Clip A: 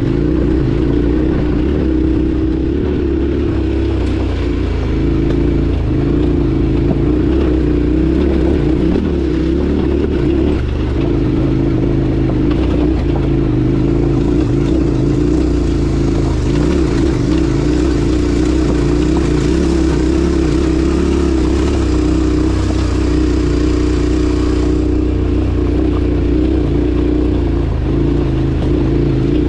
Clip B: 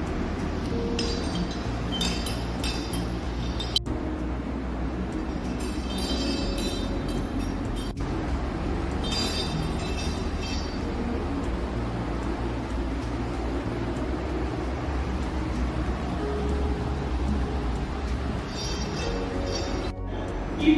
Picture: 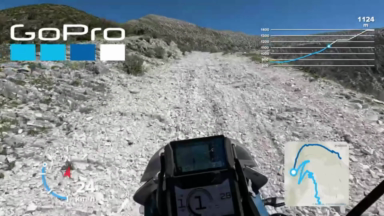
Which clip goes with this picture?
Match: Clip A